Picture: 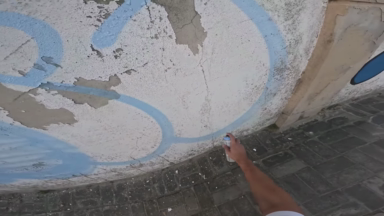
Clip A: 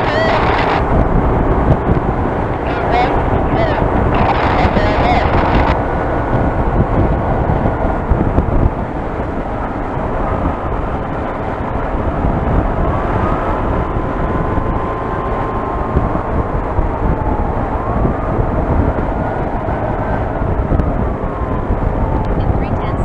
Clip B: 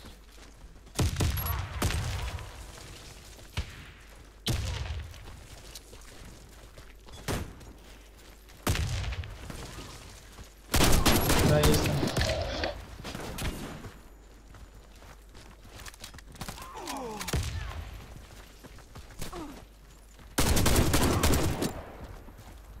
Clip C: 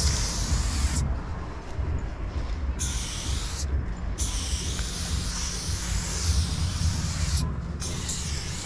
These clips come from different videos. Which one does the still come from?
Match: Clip C